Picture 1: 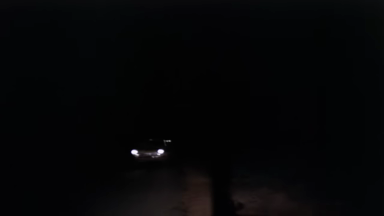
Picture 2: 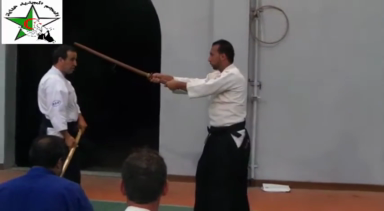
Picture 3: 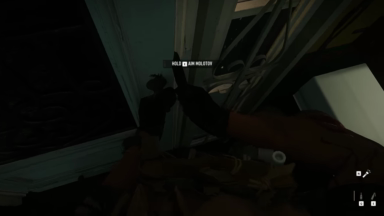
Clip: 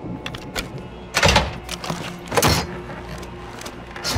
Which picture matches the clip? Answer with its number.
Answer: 3